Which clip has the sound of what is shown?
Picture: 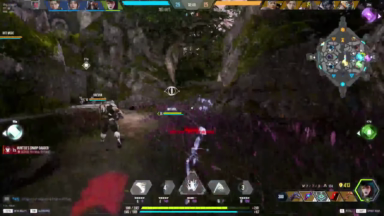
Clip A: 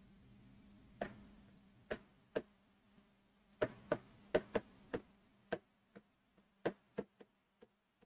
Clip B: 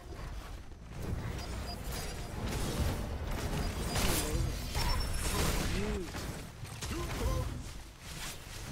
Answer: B